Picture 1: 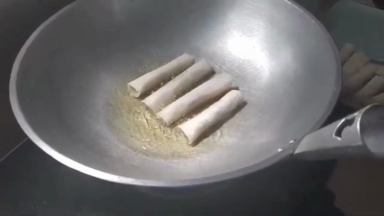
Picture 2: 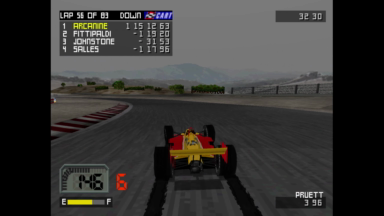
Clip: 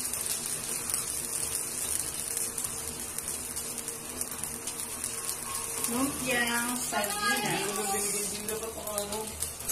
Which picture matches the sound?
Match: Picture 1